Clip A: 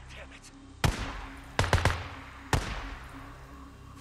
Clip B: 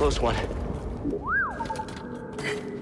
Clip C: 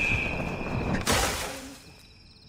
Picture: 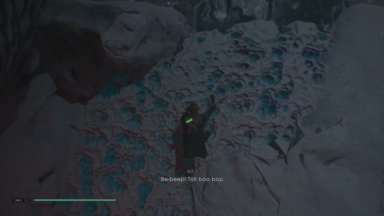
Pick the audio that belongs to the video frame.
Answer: B